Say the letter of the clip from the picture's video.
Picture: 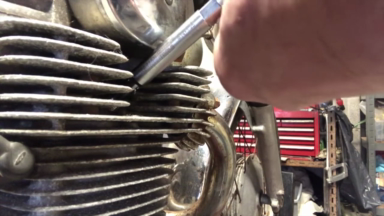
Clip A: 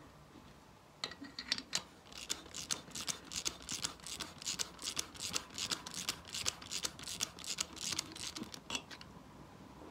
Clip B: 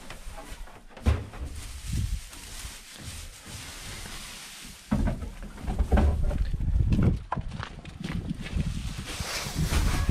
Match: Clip A